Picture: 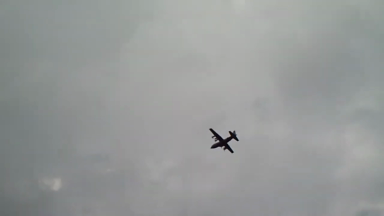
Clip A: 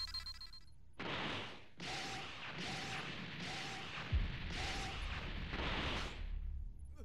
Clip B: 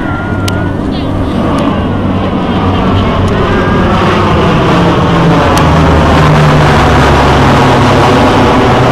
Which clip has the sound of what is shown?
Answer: B